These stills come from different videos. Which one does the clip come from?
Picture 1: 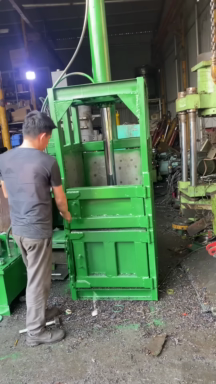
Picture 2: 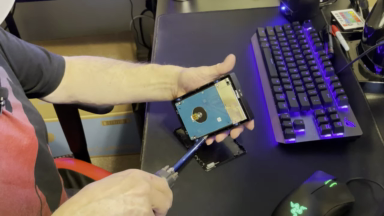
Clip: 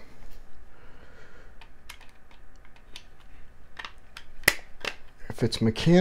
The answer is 2